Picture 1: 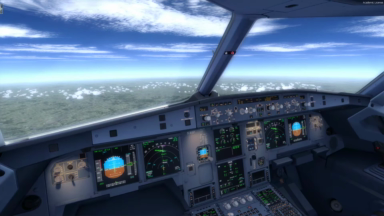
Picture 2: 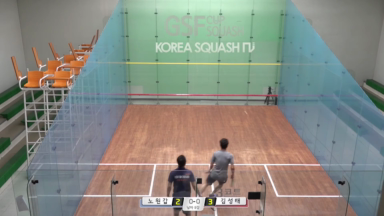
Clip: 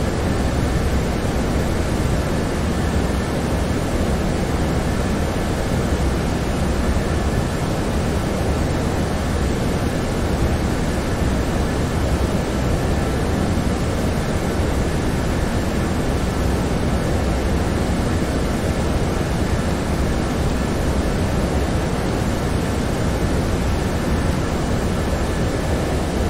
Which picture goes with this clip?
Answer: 1